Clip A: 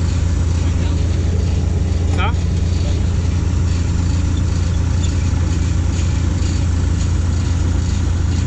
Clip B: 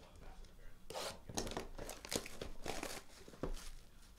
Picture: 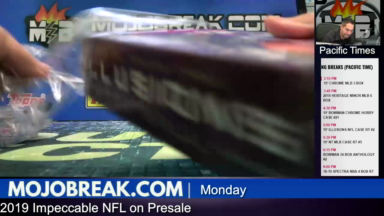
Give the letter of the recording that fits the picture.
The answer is B